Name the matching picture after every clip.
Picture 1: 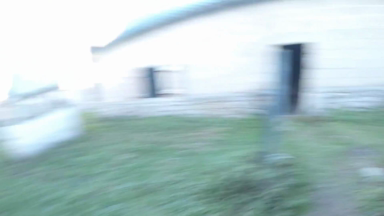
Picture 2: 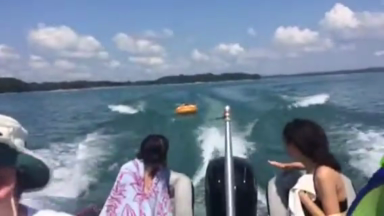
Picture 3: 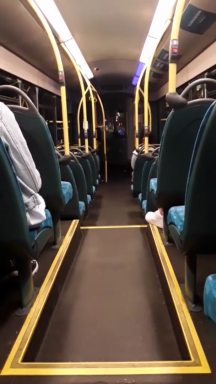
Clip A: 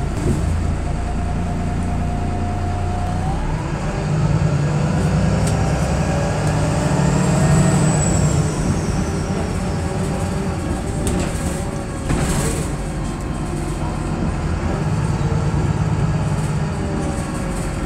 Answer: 3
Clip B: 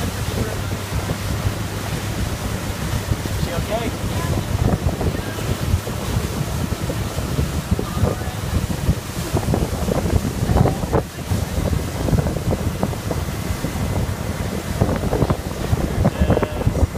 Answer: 2